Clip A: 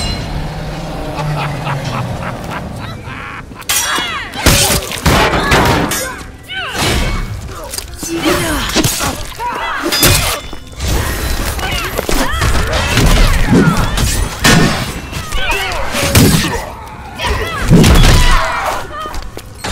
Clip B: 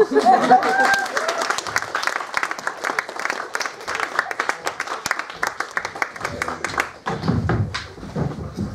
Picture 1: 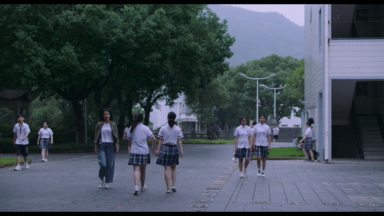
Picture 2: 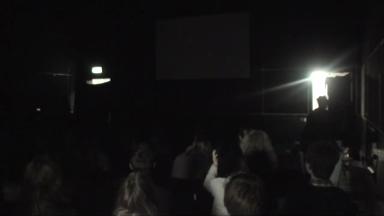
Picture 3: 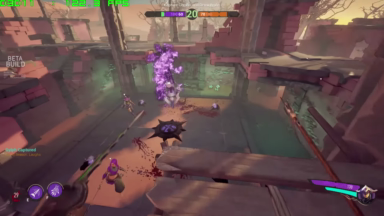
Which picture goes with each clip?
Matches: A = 3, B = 2